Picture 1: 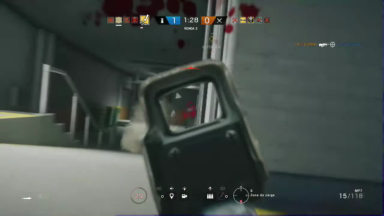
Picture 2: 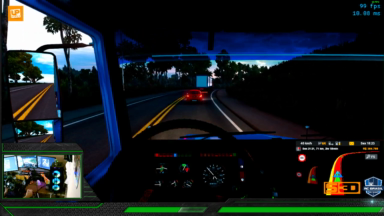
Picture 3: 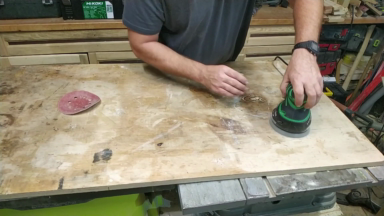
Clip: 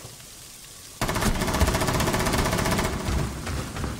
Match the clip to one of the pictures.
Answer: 1